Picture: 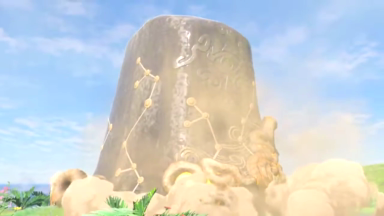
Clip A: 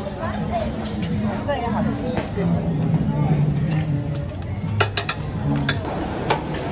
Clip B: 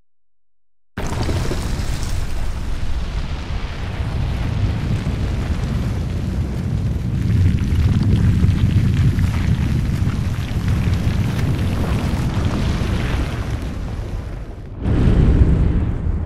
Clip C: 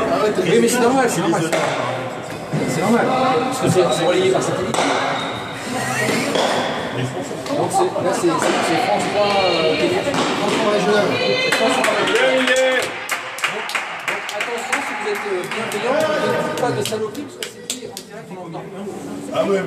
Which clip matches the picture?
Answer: B